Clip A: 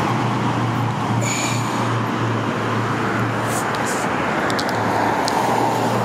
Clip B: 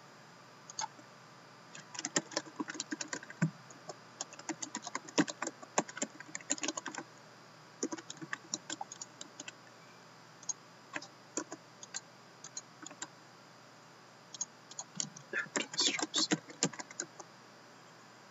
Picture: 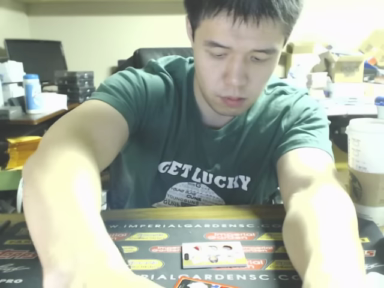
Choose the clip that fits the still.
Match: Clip B